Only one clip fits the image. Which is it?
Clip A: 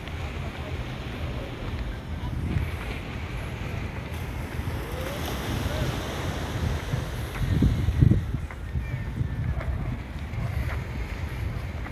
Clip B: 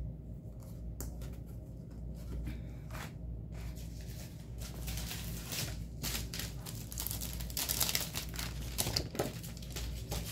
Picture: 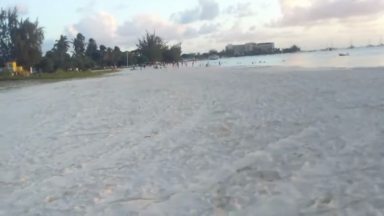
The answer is A